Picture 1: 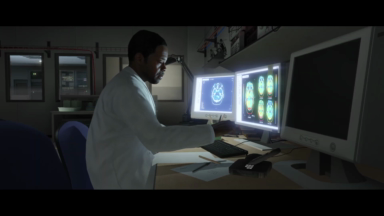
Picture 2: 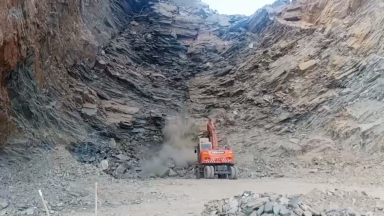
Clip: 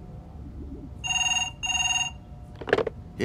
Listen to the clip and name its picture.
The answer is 1